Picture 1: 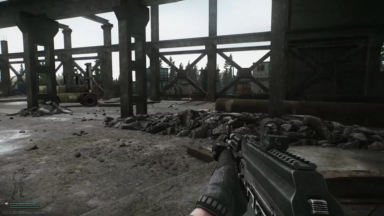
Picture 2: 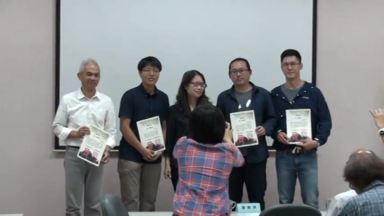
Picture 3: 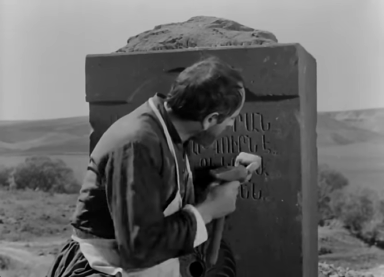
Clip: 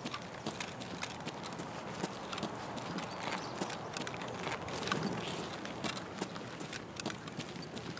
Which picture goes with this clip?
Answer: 1